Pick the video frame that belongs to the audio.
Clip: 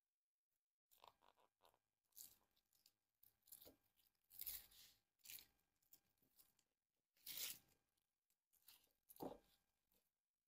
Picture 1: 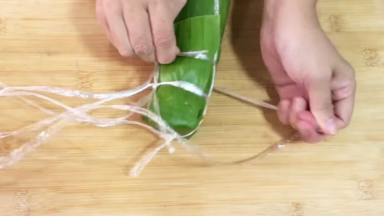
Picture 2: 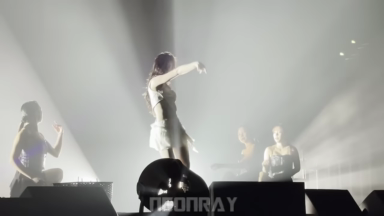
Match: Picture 1